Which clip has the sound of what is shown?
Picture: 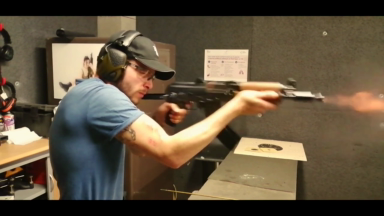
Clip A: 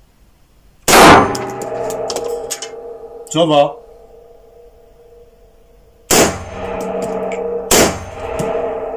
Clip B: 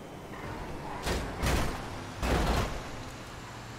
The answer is A